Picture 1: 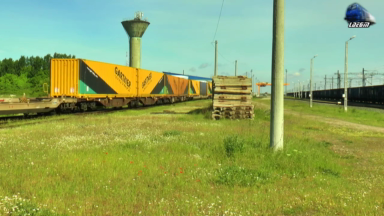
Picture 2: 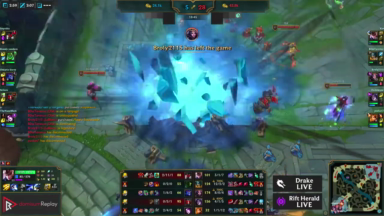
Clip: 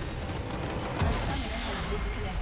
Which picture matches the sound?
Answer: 2